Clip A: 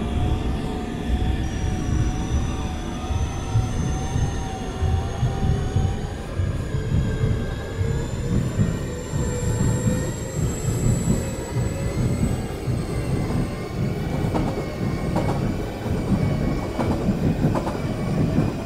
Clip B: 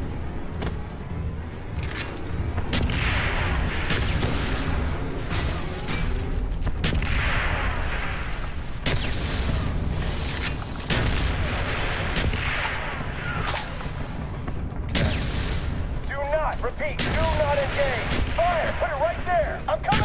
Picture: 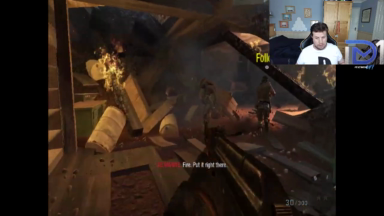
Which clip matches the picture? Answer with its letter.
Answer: B